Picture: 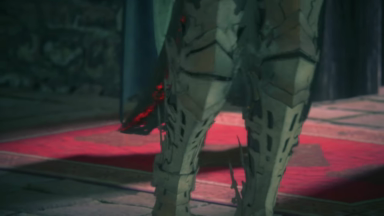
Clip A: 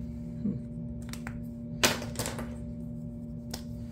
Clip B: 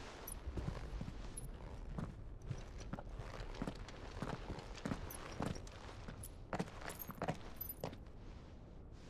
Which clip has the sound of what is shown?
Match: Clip B